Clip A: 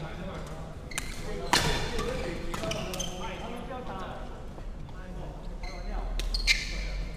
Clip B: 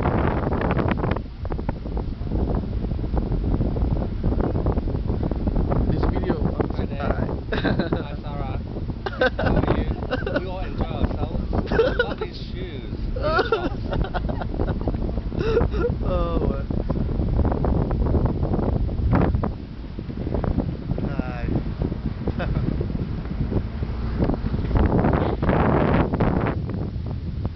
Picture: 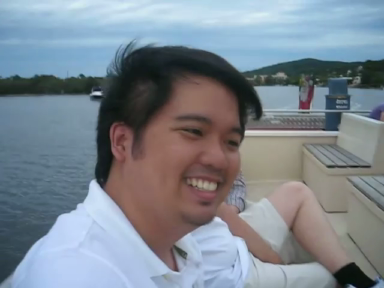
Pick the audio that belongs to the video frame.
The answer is B